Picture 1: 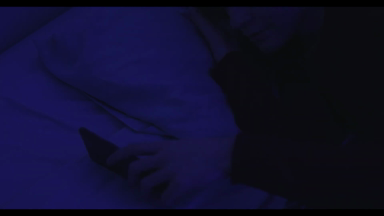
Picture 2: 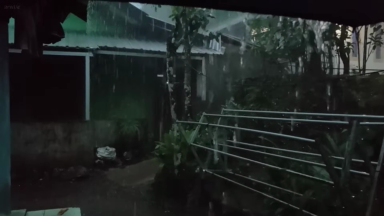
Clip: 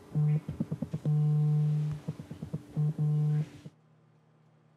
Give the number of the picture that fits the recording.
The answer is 1